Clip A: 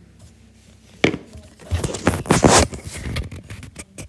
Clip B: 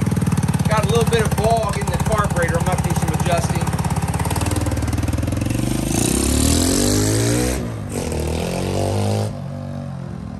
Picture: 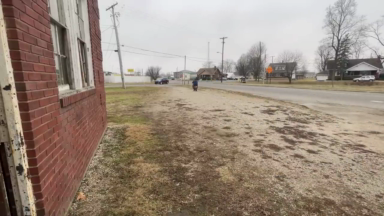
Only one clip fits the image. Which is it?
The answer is B